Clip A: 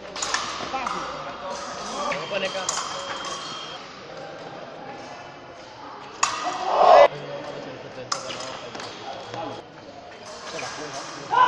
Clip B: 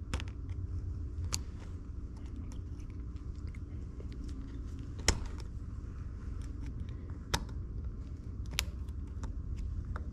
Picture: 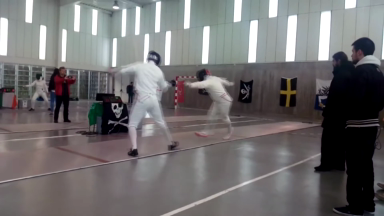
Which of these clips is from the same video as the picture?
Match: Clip A